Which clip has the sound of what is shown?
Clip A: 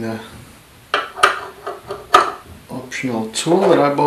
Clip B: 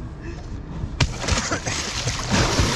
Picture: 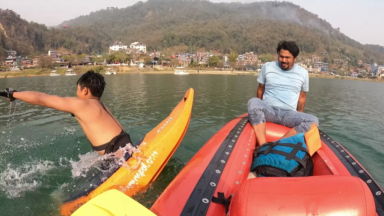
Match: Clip B